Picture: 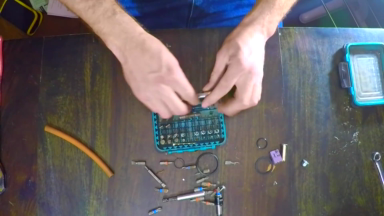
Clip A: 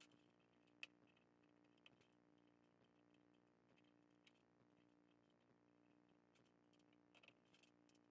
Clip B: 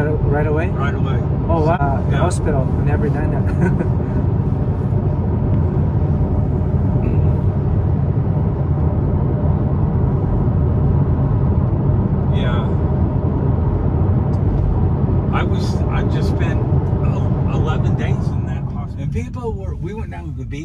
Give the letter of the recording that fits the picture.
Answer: A